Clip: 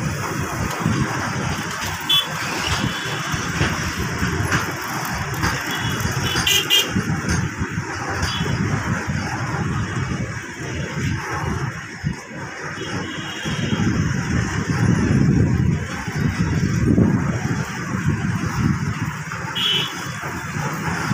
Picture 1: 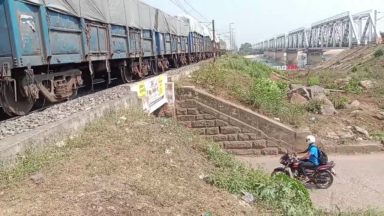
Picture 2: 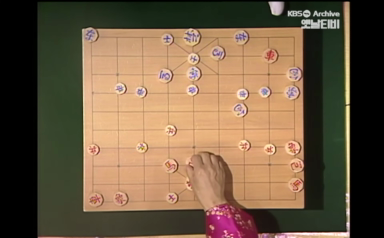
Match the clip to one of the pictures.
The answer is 1